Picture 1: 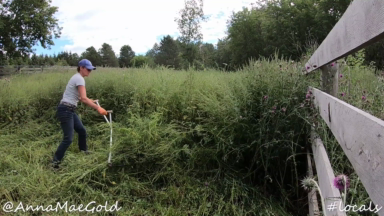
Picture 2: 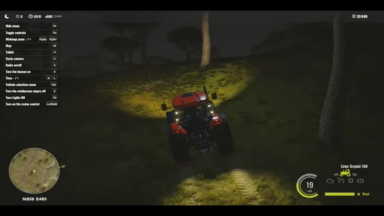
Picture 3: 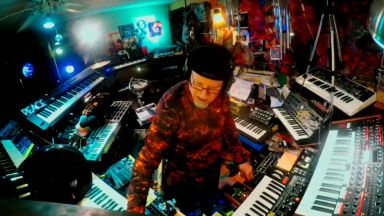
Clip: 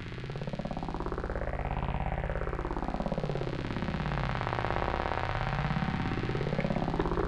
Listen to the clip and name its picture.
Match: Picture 3